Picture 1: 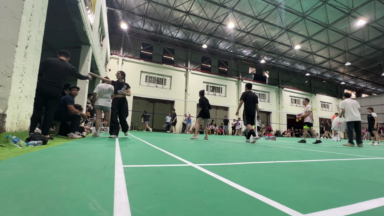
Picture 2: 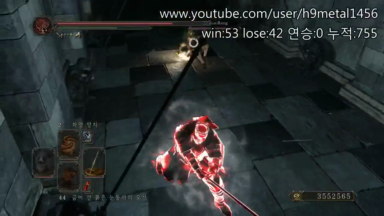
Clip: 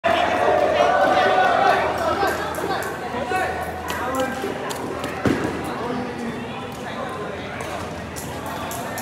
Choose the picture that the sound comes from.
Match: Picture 1